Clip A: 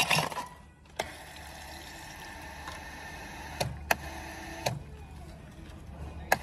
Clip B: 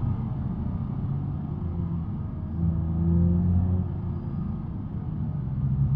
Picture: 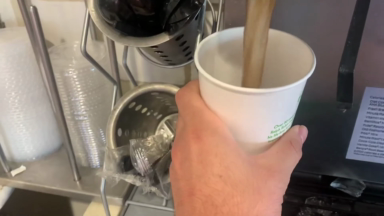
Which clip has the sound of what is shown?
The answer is A